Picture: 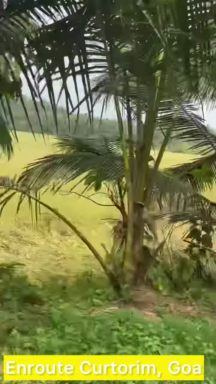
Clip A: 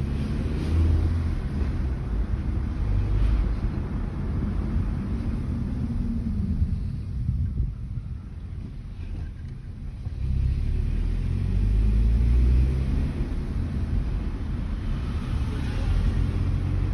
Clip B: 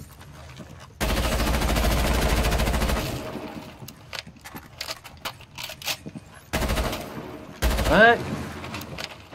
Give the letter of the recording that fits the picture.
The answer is A